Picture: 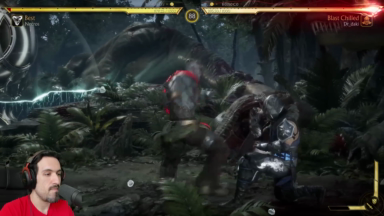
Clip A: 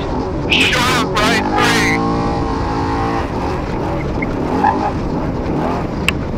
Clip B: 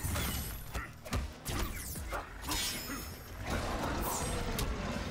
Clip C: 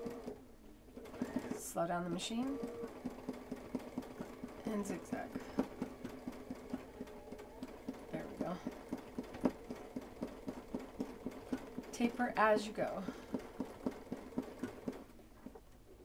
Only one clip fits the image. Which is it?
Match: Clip B